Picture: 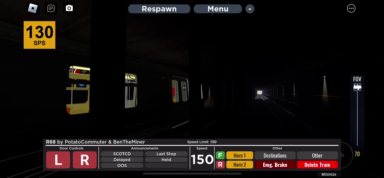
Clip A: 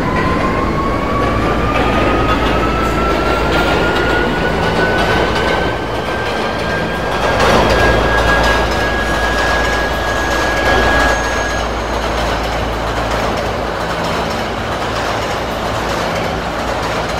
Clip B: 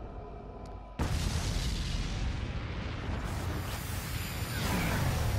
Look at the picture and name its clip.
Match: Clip A